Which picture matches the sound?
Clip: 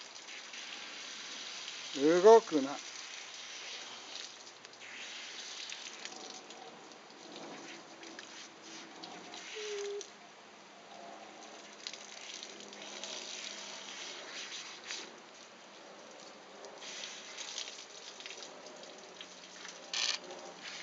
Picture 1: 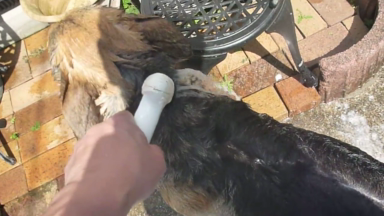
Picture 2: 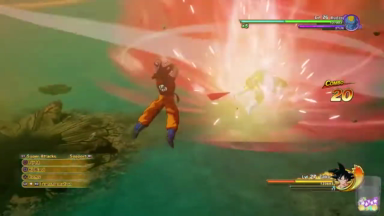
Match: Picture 1